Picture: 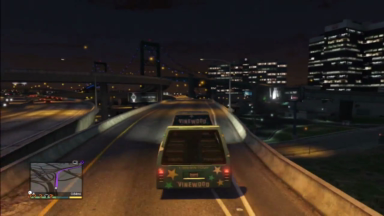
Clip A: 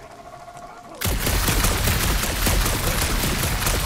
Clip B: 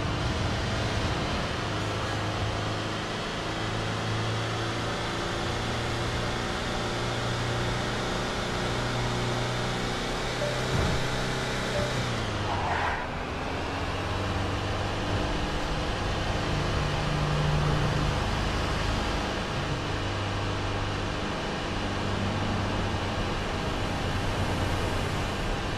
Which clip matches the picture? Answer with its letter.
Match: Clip B